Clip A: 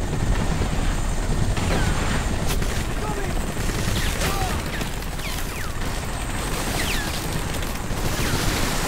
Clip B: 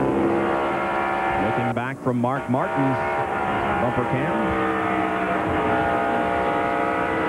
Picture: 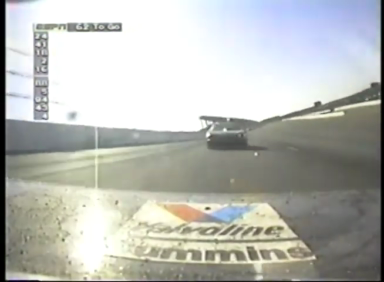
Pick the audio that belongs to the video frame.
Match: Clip B